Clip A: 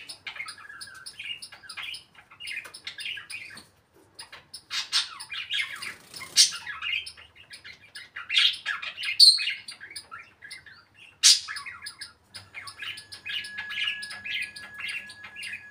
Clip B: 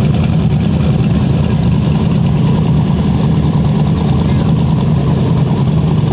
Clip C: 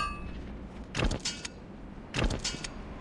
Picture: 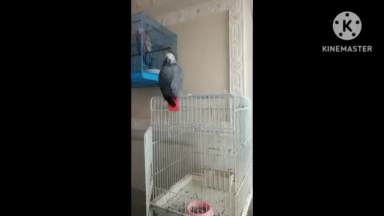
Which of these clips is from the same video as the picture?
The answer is A